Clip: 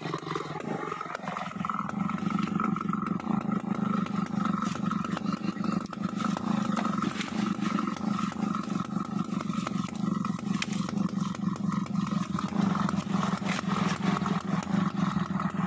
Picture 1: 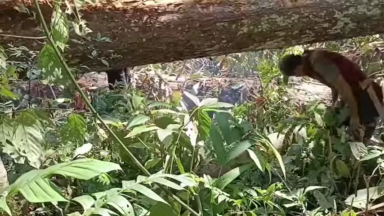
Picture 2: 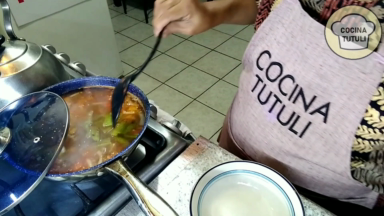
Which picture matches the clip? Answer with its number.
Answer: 1